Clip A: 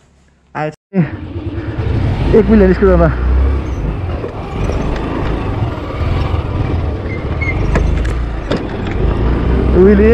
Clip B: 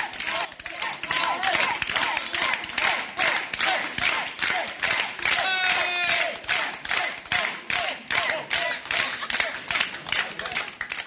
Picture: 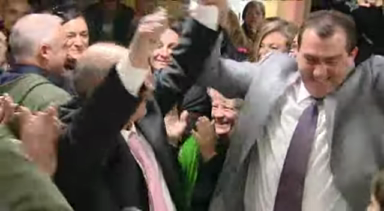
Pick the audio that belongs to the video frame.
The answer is B